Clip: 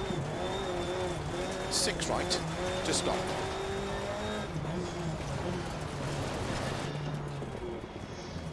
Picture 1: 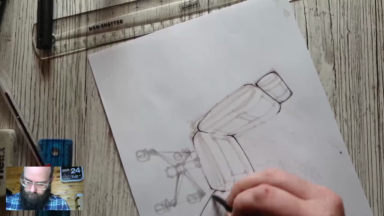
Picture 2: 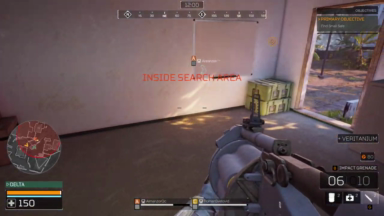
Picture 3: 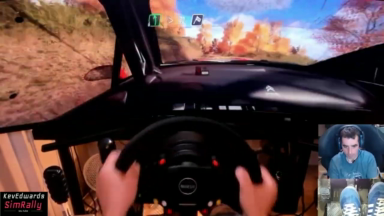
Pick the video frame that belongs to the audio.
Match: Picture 3